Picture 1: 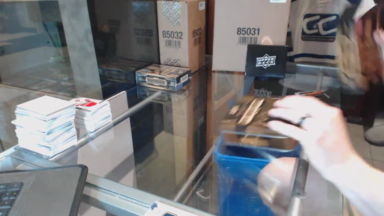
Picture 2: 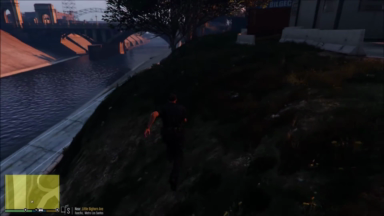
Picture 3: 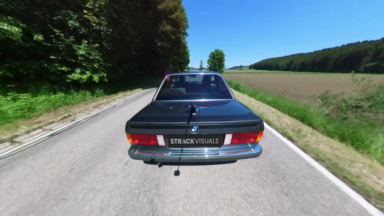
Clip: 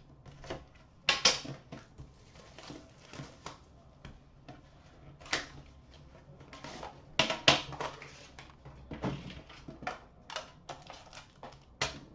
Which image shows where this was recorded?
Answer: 1